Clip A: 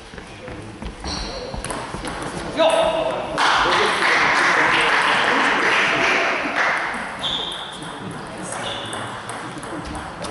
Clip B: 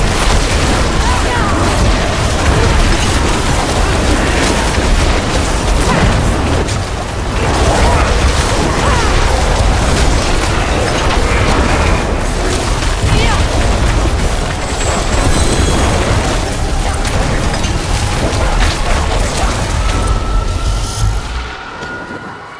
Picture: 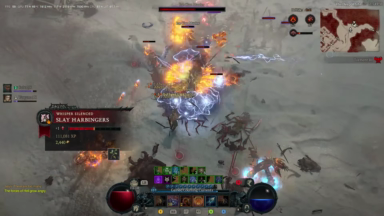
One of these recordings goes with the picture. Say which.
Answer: B